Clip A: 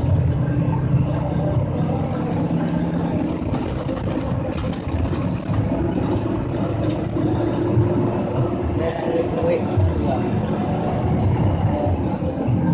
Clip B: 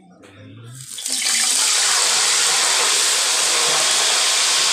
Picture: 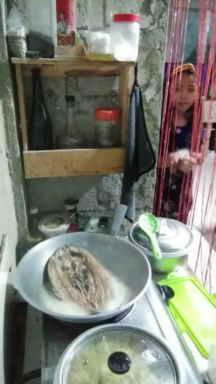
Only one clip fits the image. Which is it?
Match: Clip B